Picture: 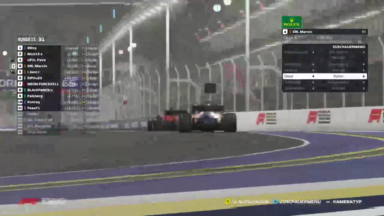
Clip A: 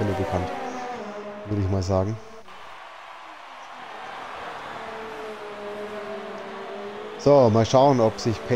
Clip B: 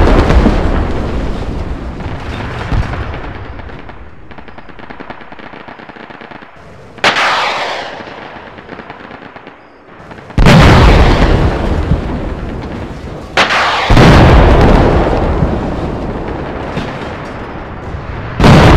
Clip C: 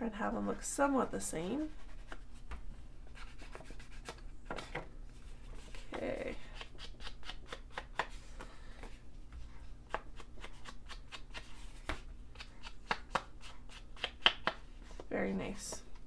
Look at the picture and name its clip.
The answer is A